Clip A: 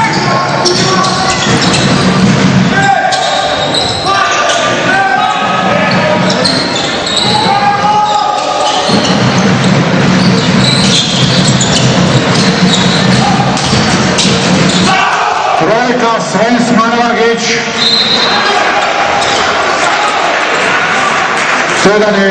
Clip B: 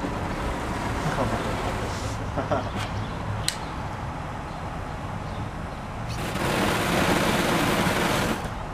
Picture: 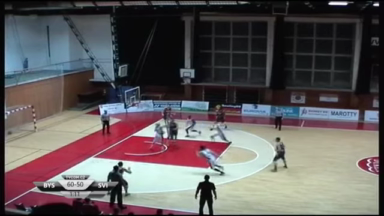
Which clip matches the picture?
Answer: A